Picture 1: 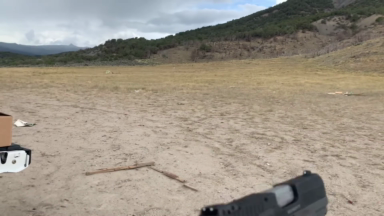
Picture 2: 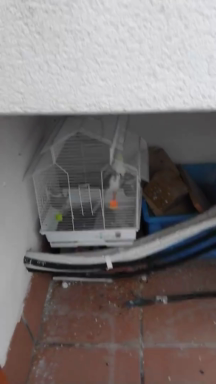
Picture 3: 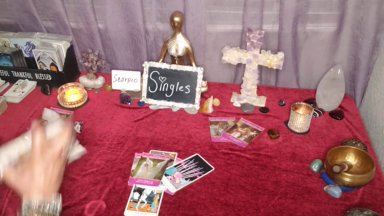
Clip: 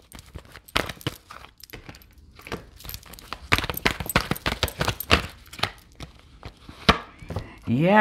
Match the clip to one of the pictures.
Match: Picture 3